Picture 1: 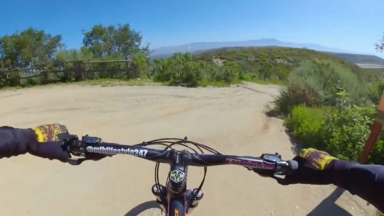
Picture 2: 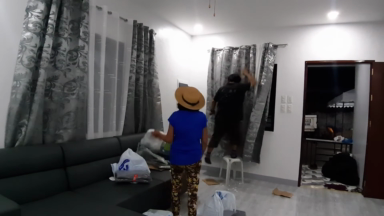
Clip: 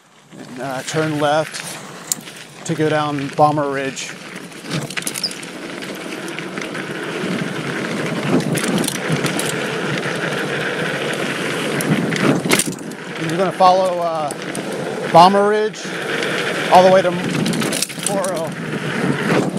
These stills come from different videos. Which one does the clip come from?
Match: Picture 1